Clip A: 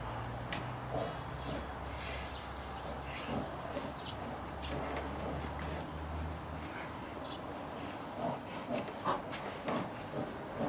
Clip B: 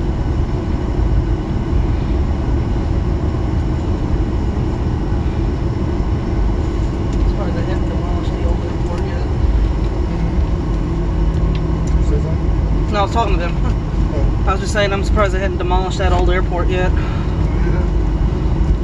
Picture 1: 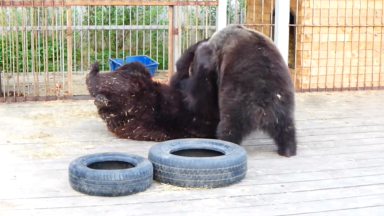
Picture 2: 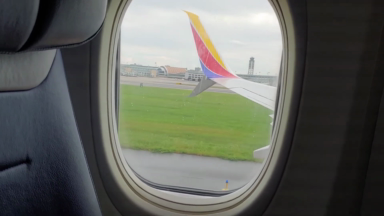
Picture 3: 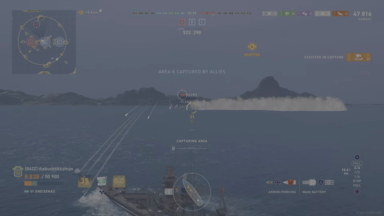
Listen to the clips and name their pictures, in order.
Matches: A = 1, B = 2